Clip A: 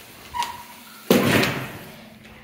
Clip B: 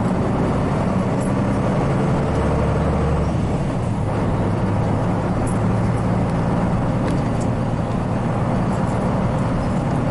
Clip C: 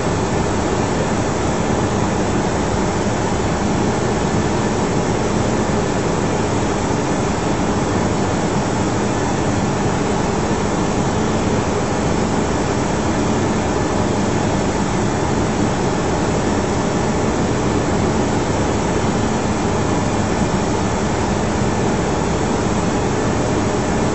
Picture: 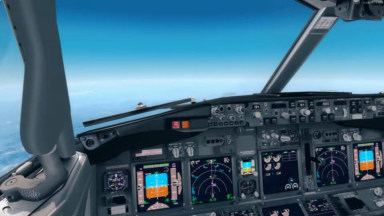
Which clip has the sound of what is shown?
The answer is C